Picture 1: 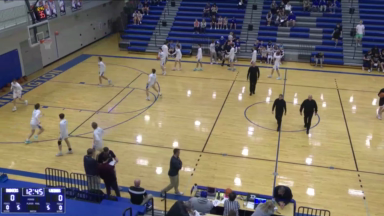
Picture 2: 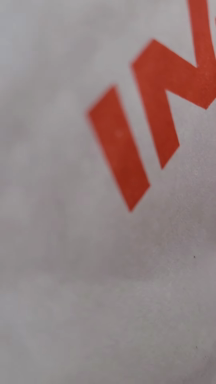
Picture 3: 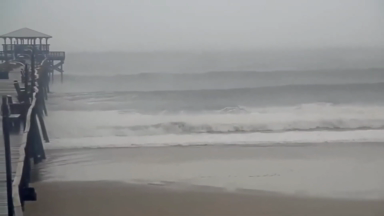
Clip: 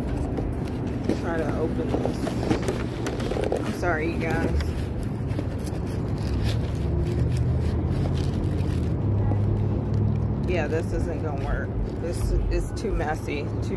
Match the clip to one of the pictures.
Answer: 2